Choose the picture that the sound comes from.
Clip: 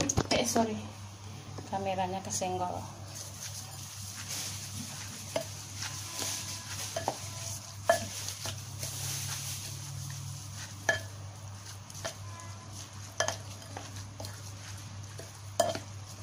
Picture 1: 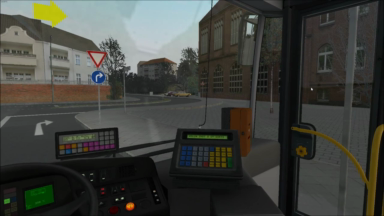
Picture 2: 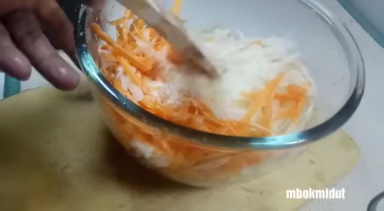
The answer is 2